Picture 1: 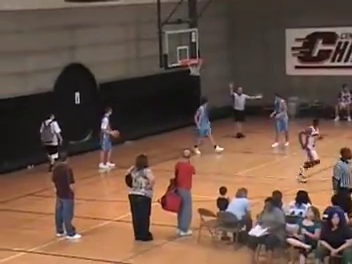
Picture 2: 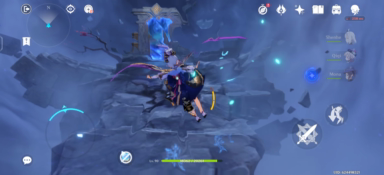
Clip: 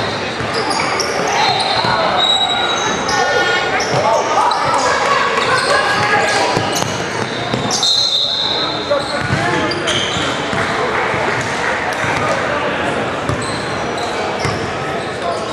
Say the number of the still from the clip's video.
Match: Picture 1